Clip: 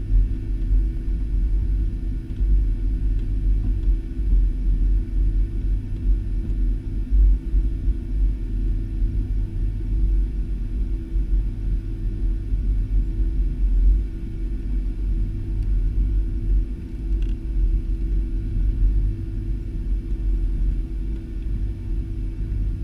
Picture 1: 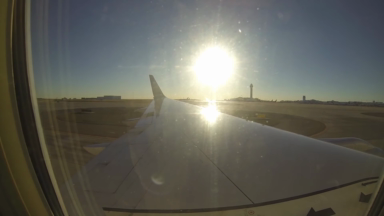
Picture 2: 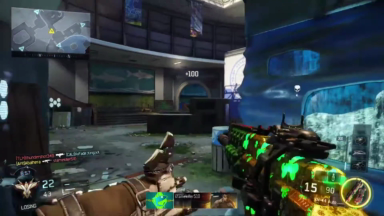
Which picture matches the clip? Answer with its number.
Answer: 1